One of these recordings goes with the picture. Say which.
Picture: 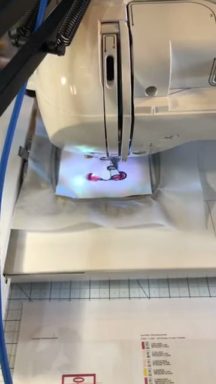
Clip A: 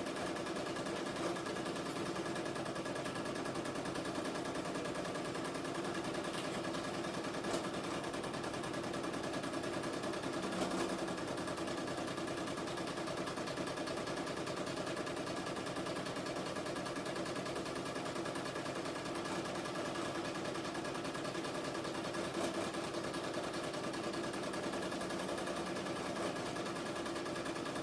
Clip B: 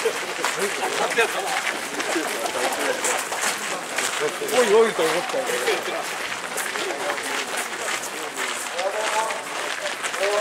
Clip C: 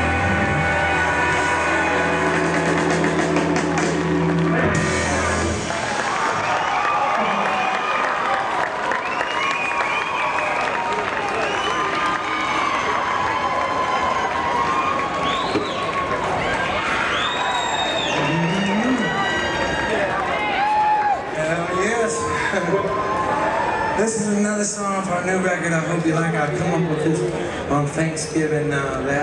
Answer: A